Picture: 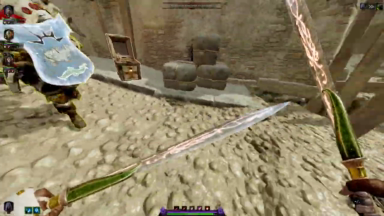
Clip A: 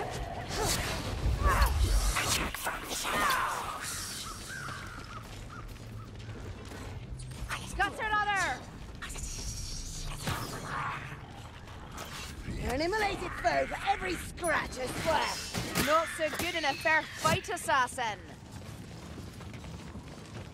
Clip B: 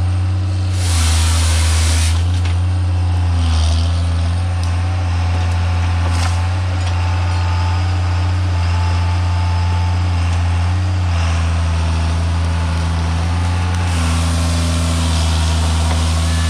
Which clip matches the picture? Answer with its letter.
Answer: A